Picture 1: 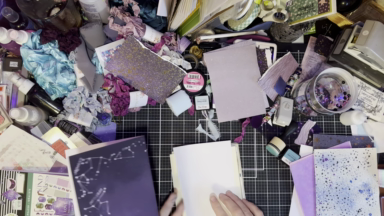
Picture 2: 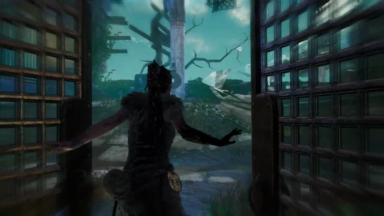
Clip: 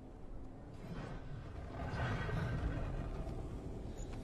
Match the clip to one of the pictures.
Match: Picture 2